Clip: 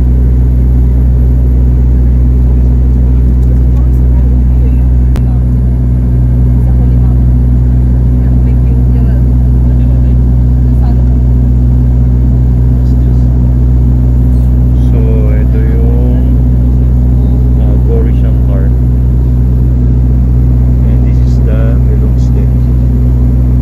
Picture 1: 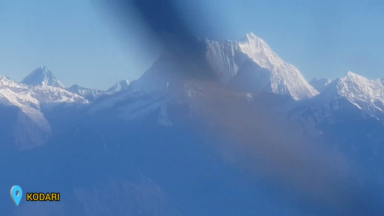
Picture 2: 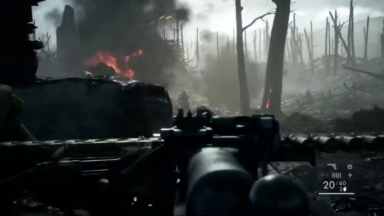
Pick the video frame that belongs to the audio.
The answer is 1